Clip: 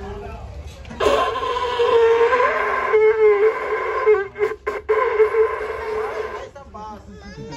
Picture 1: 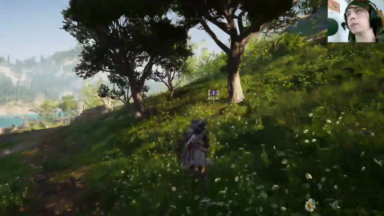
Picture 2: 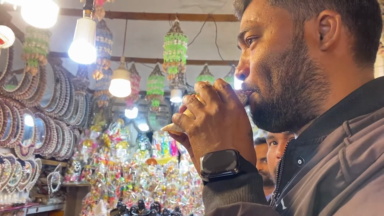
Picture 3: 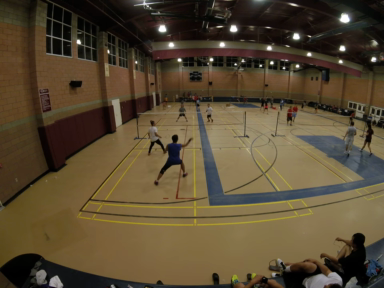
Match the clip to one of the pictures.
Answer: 2